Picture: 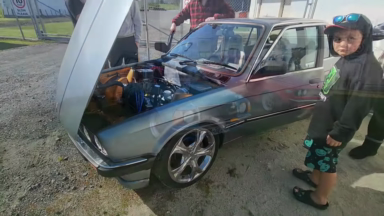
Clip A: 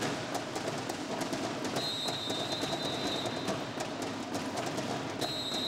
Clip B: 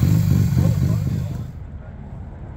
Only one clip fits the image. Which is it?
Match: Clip B